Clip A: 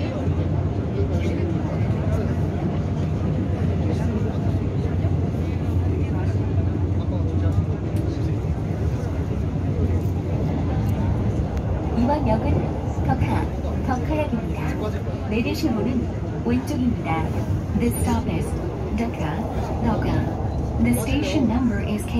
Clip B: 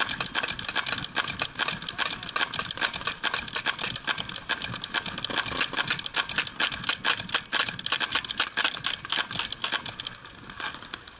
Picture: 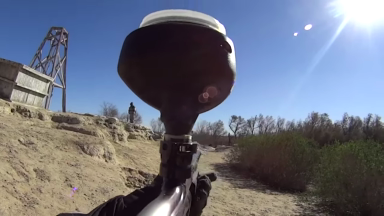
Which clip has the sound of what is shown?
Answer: B